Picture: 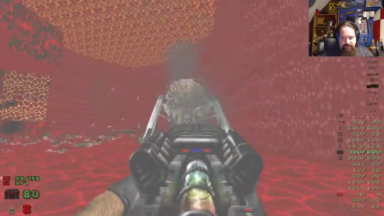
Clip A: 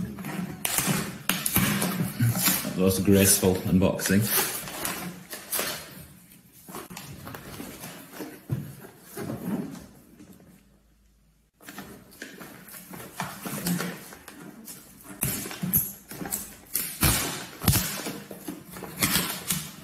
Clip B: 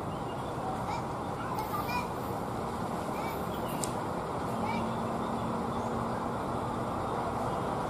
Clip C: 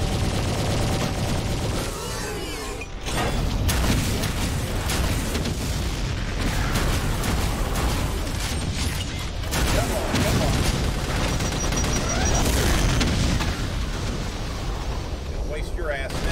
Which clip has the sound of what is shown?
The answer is C